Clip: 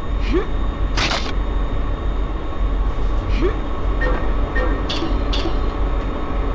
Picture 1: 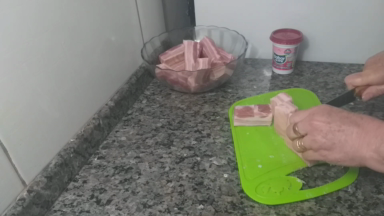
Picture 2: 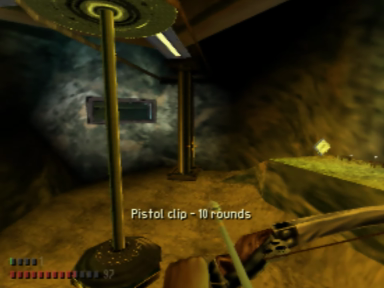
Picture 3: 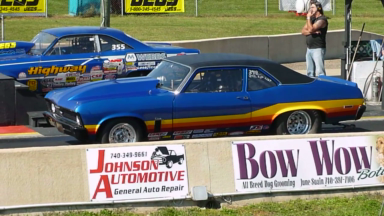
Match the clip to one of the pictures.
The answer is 2